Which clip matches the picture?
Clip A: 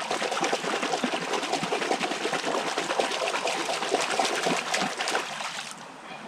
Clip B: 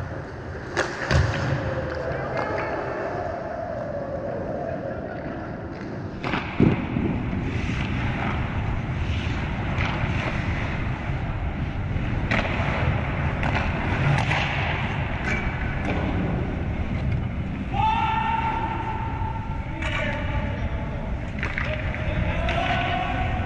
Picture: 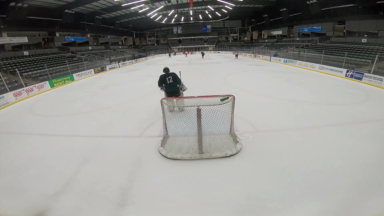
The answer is B